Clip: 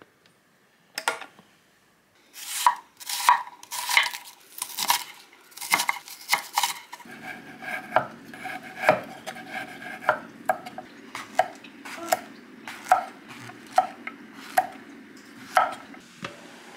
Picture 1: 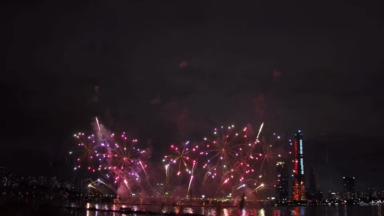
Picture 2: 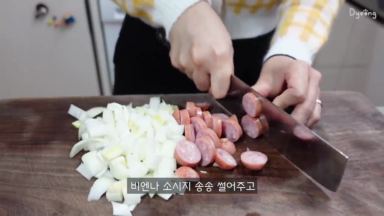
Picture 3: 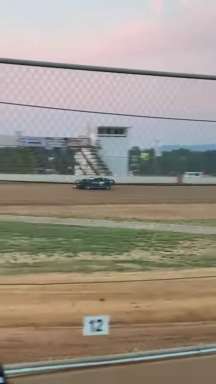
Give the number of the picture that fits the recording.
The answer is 2